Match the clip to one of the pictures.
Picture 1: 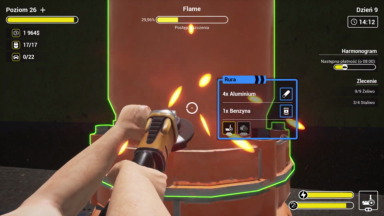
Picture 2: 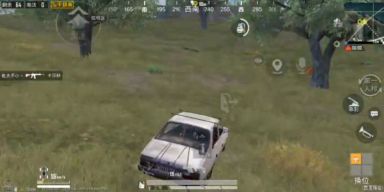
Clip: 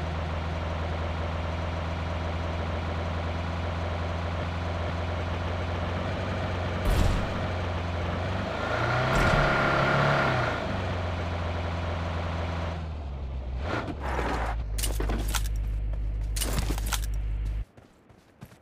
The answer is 2